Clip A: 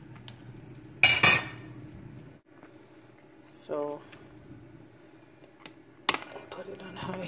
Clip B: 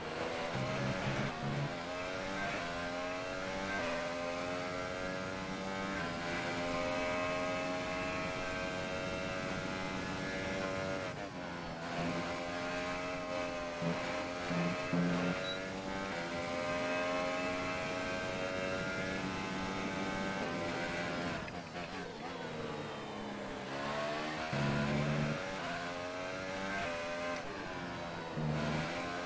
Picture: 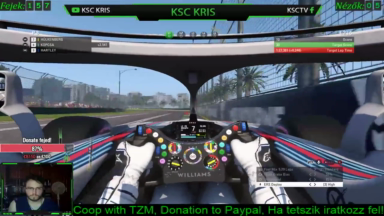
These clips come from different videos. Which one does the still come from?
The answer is B